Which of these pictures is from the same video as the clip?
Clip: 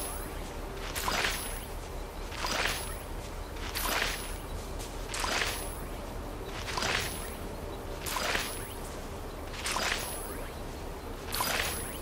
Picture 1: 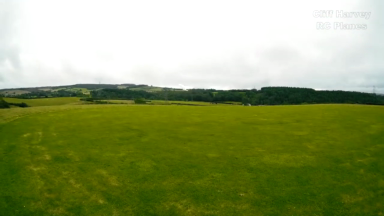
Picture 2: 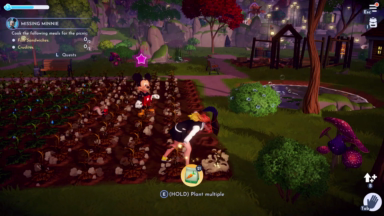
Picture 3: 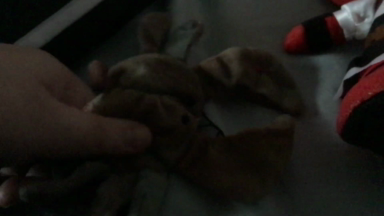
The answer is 2